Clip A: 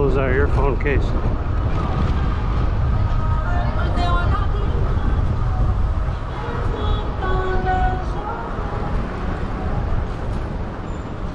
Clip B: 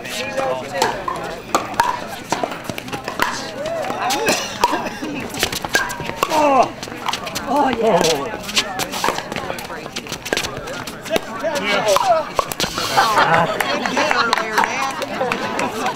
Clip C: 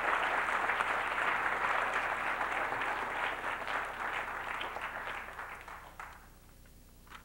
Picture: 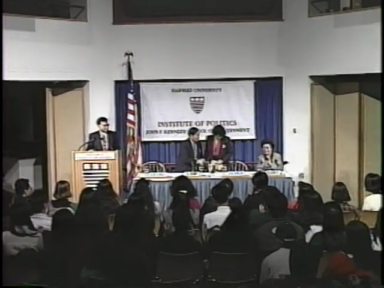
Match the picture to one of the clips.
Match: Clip C